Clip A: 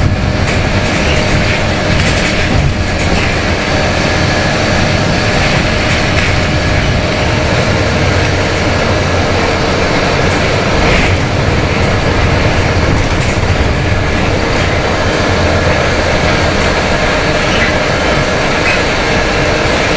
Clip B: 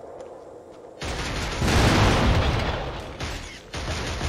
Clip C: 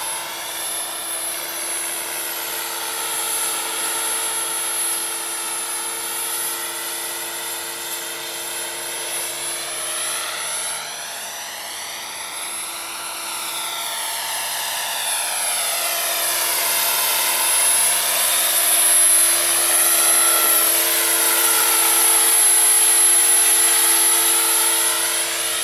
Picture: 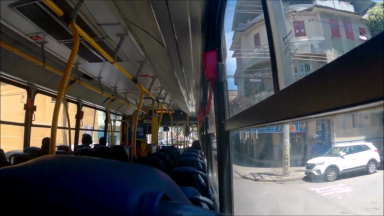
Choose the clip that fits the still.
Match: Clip A